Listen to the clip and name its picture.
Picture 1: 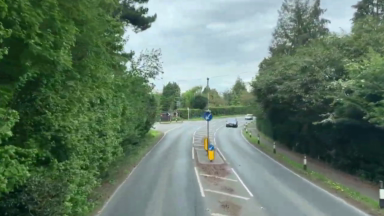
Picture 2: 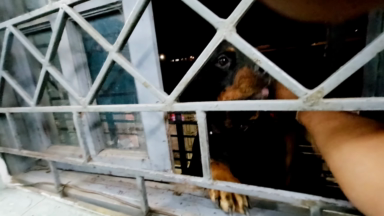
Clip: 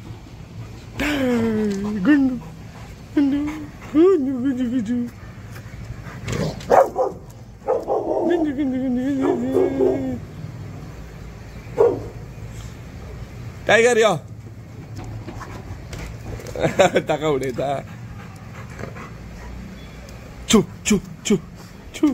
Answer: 2